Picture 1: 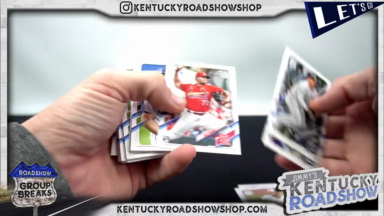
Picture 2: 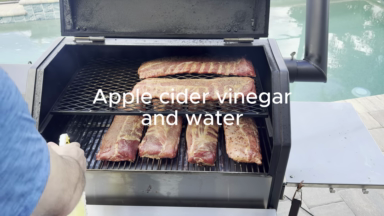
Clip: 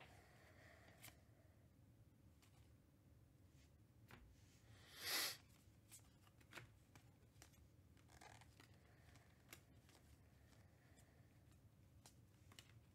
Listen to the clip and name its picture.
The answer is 1